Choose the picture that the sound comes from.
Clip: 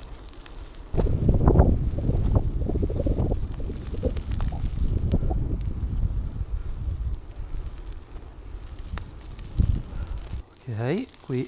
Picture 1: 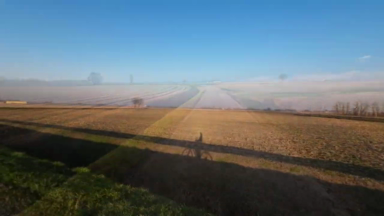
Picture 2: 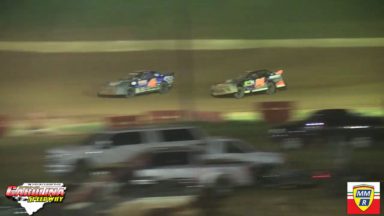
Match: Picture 1